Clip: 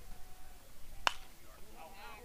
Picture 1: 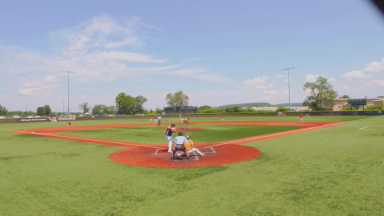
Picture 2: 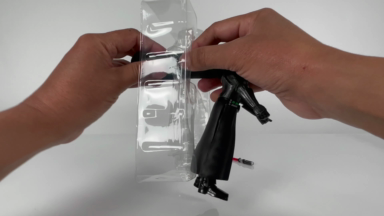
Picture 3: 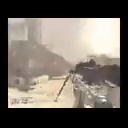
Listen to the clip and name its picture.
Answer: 1